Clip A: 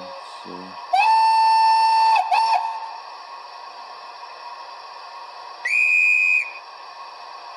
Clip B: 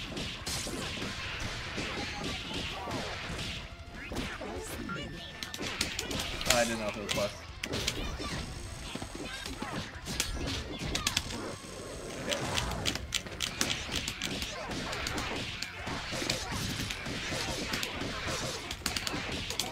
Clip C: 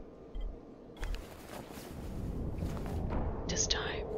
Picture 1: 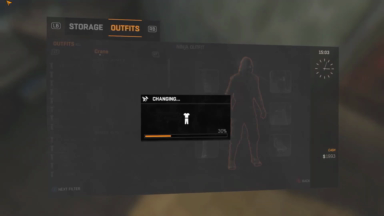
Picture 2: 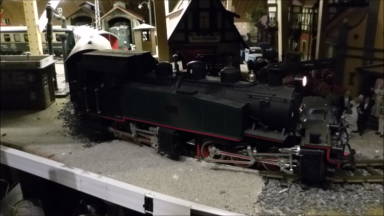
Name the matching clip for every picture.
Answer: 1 C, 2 A